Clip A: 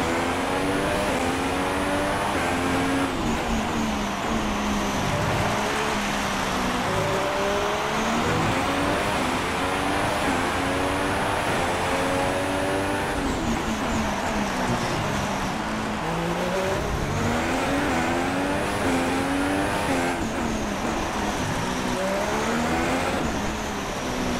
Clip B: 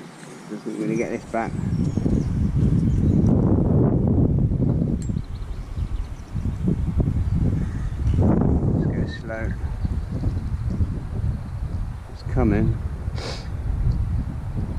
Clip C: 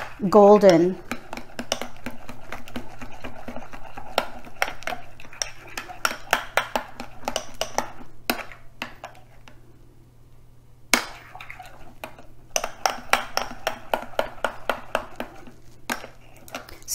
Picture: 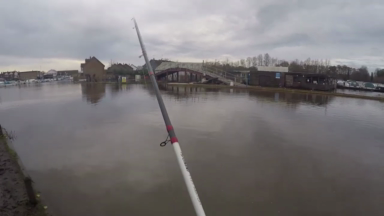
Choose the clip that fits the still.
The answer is B